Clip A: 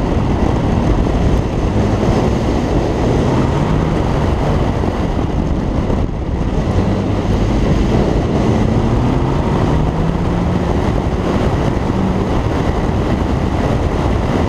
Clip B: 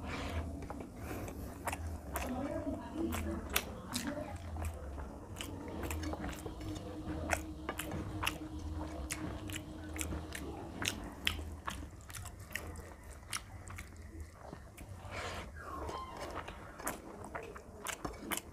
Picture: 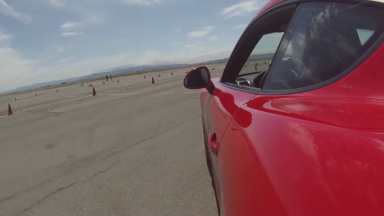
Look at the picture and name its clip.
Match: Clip A